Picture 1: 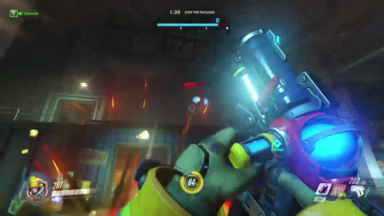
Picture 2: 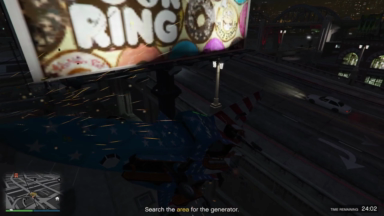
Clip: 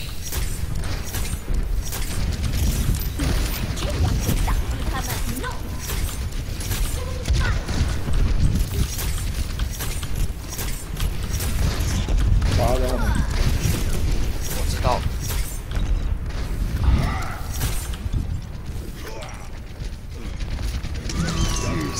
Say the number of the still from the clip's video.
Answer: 1